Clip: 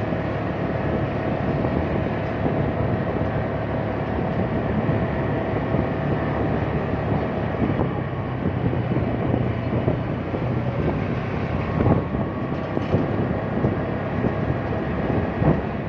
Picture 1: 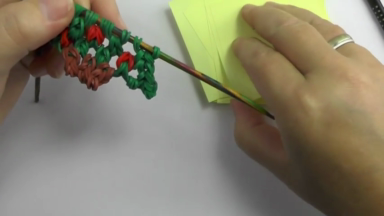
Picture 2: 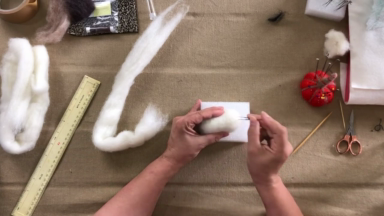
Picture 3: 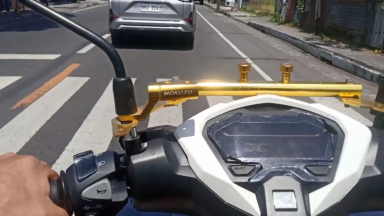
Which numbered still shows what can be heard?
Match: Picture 3